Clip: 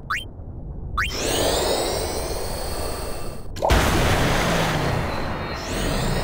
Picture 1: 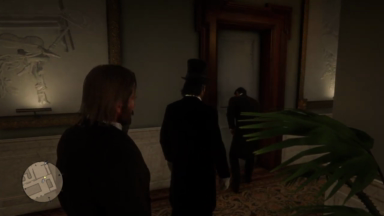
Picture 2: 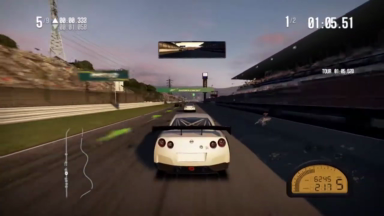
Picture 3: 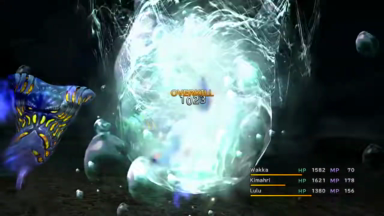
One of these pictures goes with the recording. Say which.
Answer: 3